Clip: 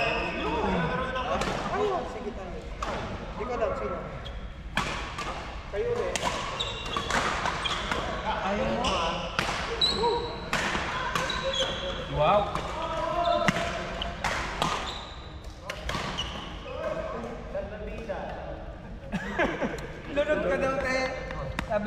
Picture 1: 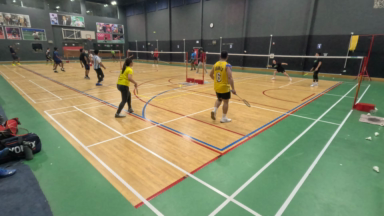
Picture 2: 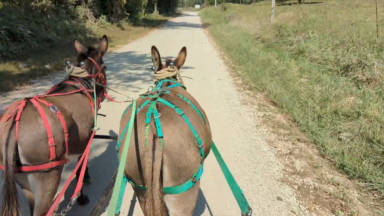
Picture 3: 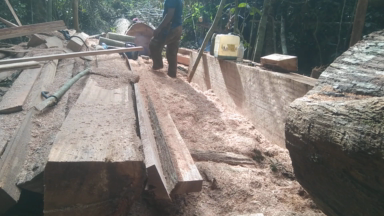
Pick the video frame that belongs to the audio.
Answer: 1